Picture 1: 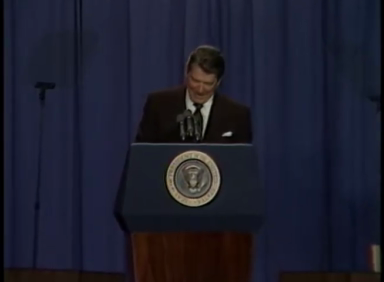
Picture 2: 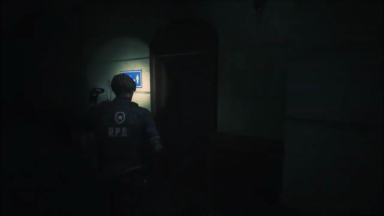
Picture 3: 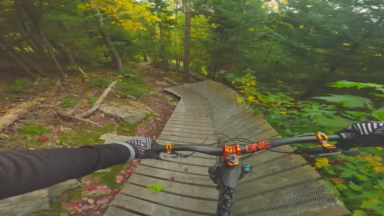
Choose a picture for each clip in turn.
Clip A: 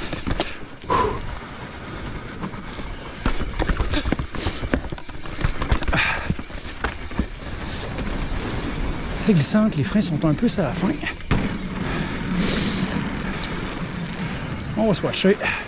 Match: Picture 3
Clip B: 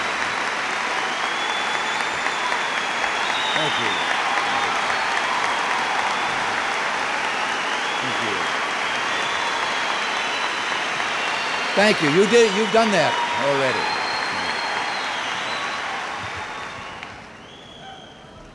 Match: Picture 1